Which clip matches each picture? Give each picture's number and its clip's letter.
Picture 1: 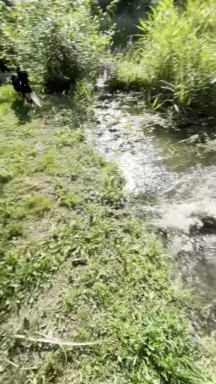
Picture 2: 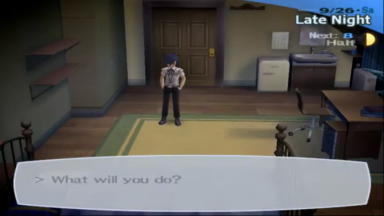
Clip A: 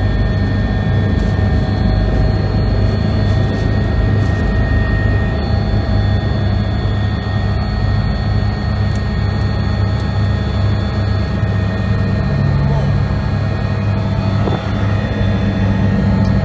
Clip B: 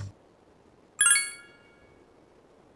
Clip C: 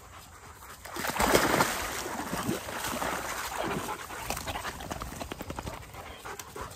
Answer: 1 C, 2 B